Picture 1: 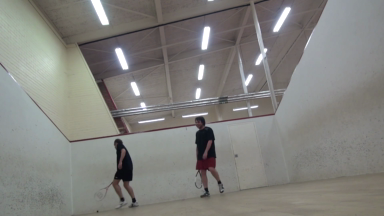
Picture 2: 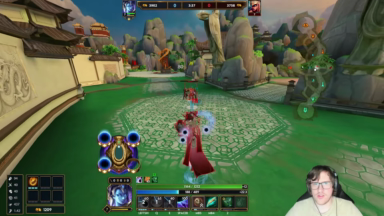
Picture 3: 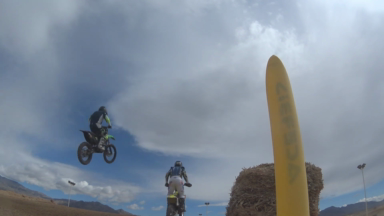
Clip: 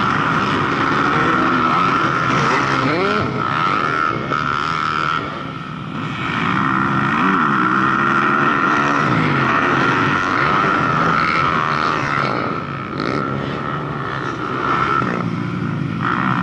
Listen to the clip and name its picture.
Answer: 3